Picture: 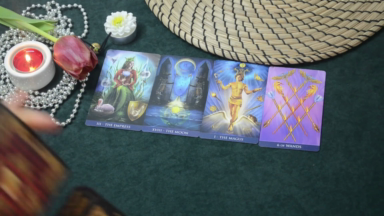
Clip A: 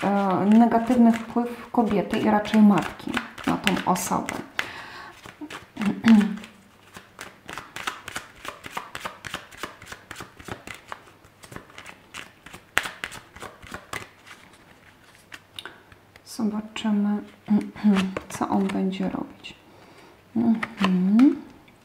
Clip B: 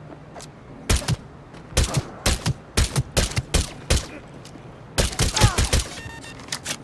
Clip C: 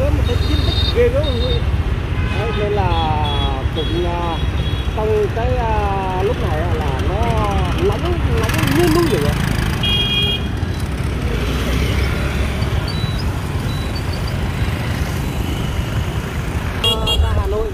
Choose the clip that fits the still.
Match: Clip A